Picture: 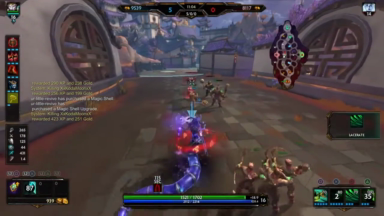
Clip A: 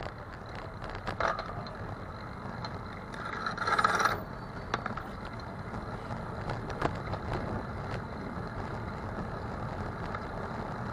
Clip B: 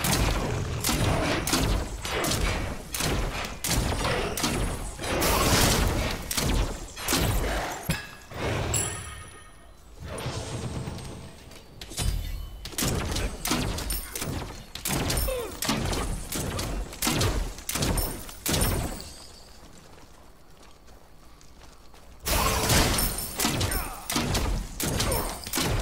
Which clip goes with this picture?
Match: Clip B